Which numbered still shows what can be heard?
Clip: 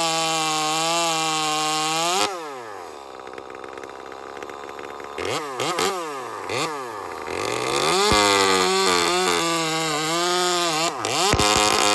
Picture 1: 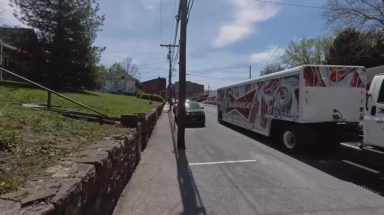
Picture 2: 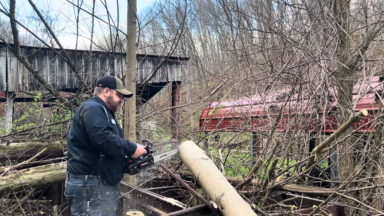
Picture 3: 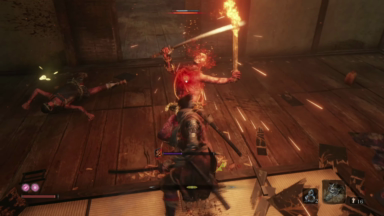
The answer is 2